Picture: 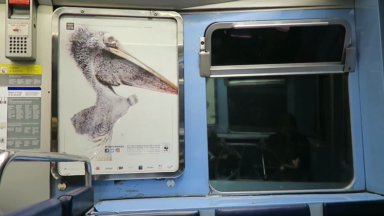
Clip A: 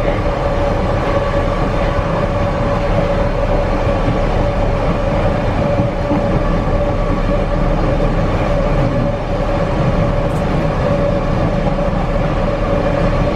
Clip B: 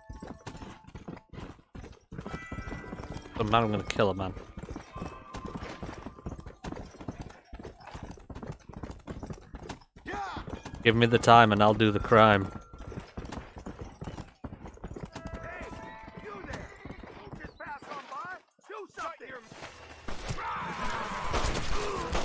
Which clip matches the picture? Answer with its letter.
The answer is A